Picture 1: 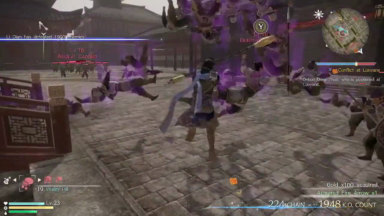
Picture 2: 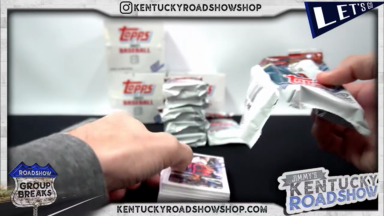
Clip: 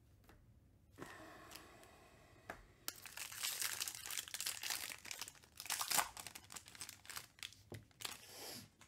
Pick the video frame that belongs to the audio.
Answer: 2